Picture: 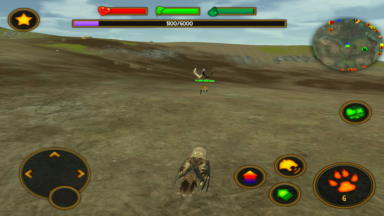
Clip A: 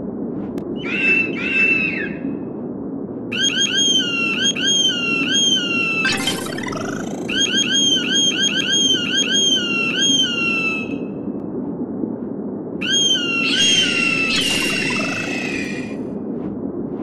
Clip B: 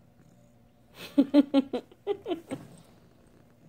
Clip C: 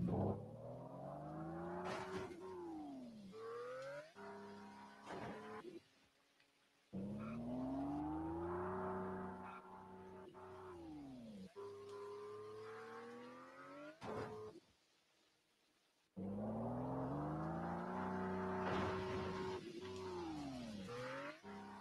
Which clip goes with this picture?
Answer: A